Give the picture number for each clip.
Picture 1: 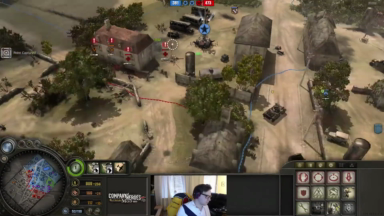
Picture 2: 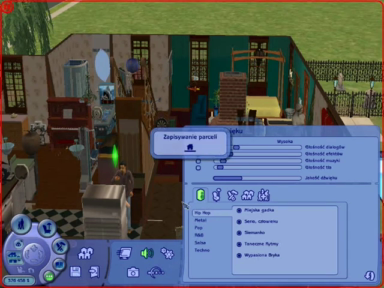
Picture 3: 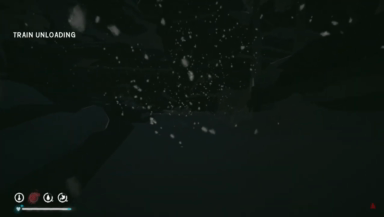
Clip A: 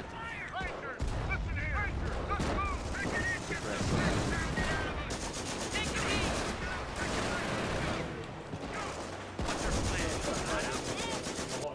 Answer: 1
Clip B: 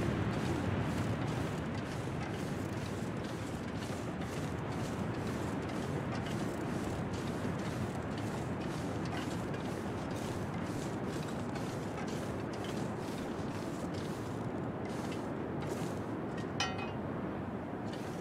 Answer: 3